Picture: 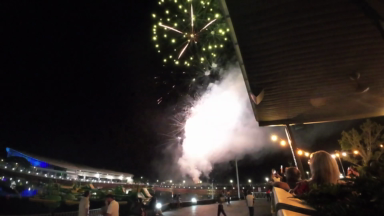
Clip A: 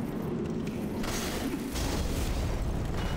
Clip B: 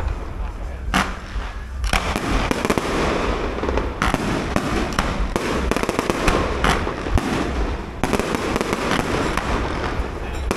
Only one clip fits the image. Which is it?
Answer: B